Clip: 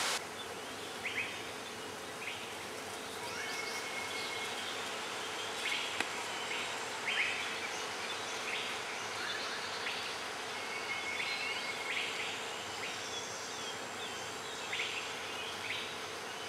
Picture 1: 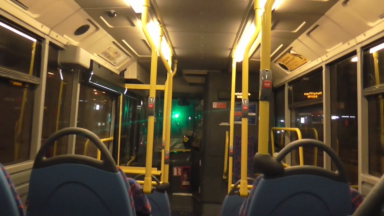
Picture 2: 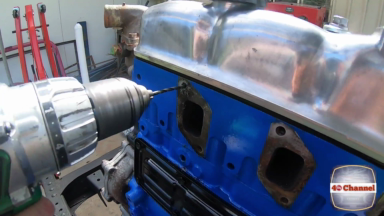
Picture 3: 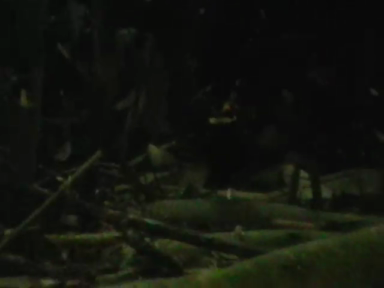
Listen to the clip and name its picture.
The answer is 3